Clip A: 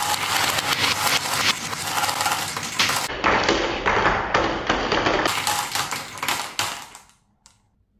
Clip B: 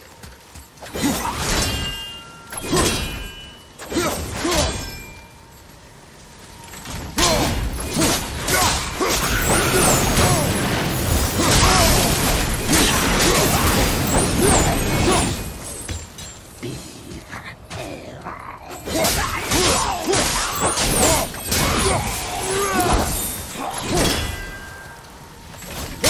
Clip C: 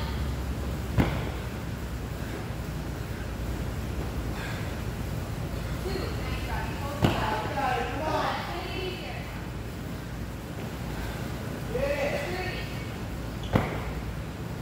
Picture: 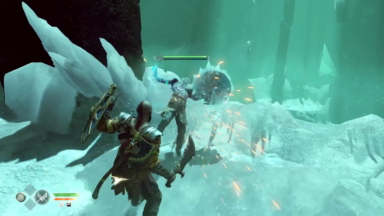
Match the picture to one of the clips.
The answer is B